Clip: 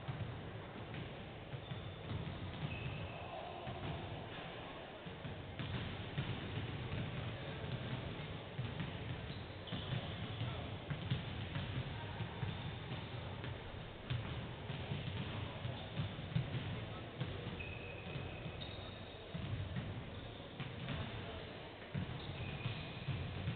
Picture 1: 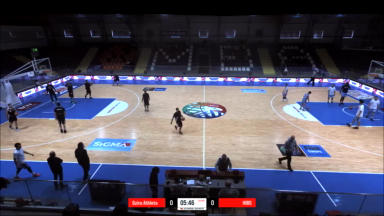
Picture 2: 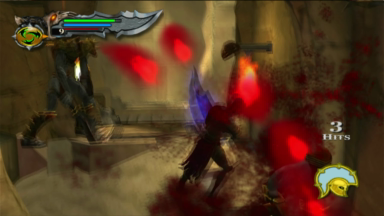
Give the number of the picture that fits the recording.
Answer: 1